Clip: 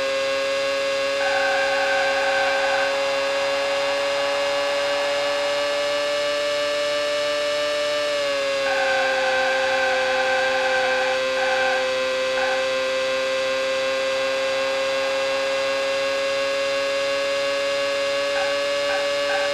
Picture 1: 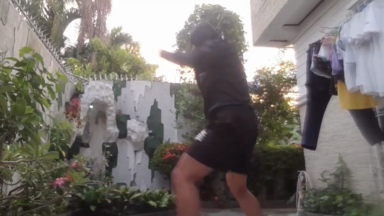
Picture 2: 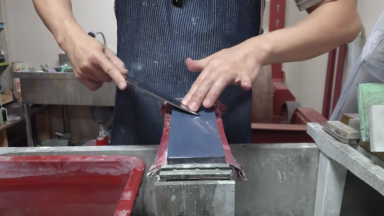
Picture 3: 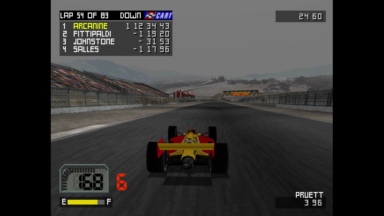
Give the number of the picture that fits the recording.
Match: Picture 3